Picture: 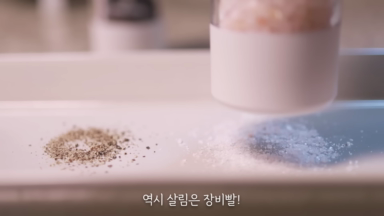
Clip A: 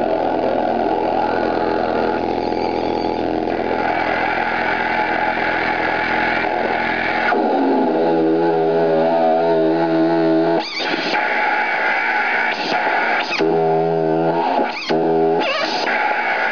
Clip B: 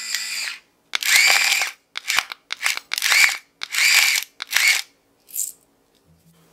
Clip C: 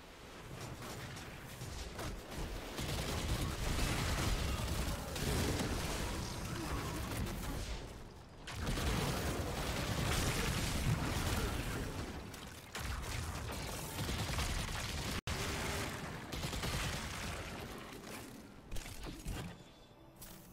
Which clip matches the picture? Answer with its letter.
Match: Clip B